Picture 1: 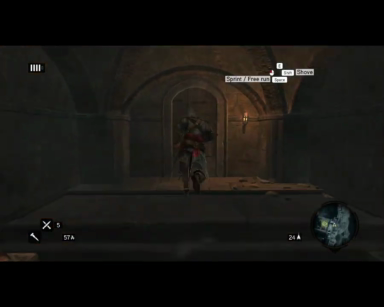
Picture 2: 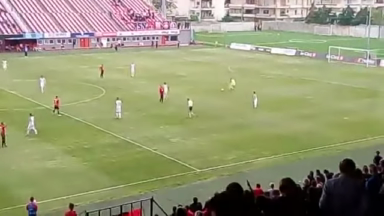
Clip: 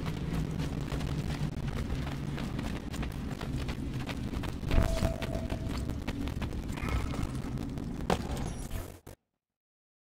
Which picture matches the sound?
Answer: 1